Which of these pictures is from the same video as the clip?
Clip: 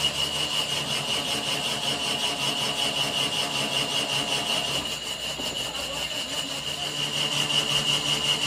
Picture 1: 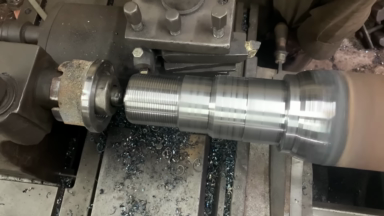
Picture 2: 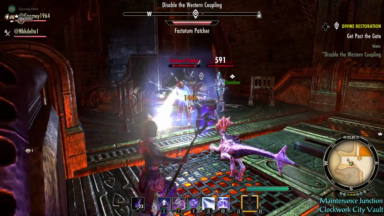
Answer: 1